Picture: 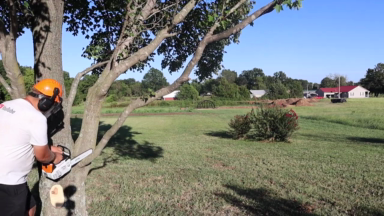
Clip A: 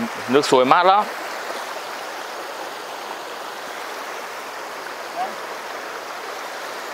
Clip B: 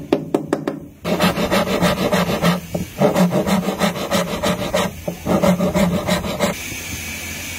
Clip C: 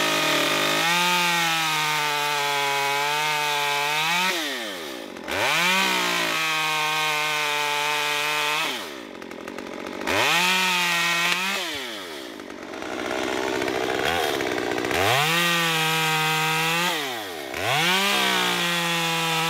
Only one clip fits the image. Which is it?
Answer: C